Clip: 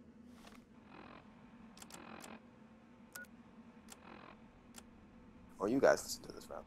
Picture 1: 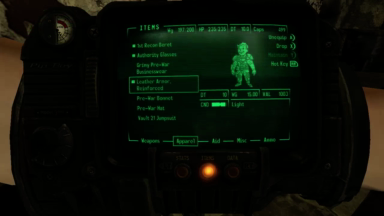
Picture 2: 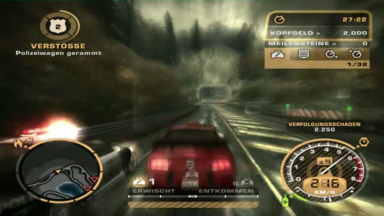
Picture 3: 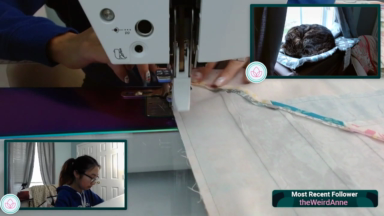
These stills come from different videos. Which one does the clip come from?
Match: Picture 1